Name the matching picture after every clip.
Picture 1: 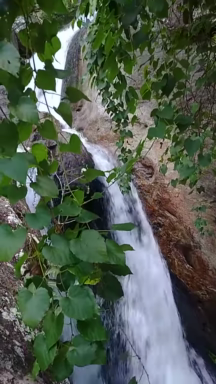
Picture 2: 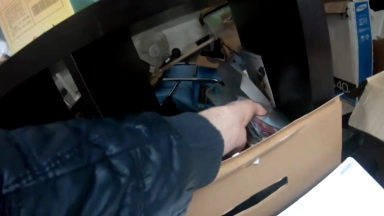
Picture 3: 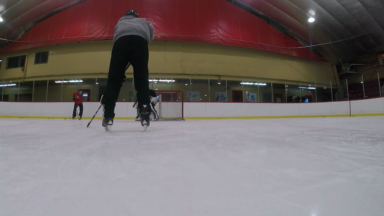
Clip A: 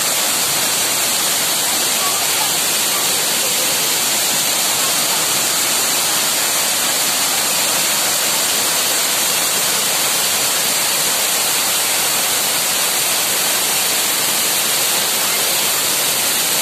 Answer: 1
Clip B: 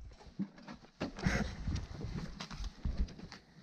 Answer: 2